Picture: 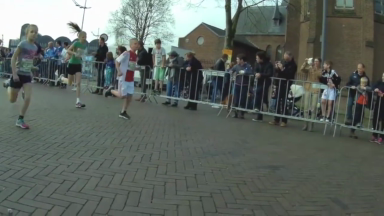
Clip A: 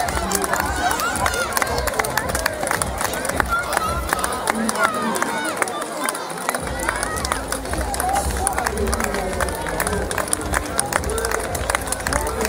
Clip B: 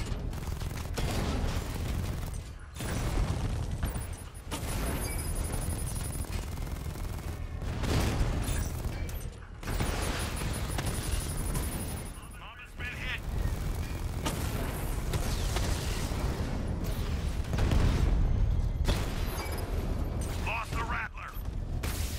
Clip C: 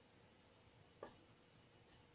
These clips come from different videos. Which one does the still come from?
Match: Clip A